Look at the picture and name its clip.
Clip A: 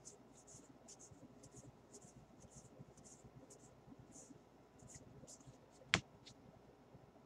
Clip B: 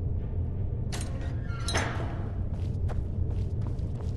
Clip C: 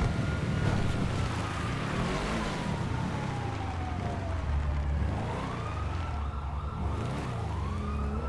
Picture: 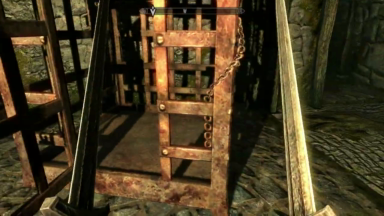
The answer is B